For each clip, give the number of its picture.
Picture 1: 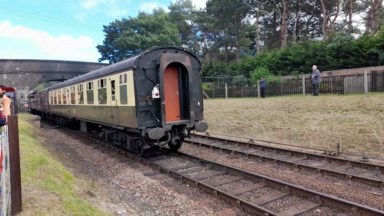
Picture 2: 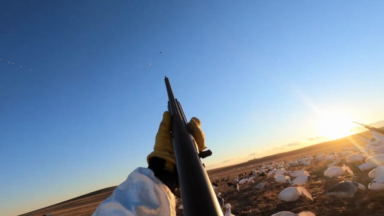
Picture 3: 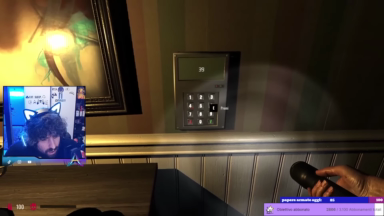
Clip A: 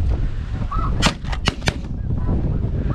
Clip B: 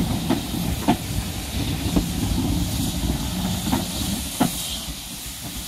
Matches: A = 2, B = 1